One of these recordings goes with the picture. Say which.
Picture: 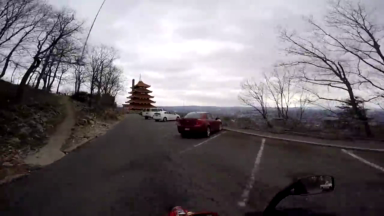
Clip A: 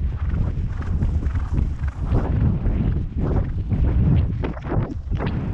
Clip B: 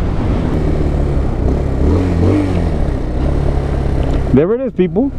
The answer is B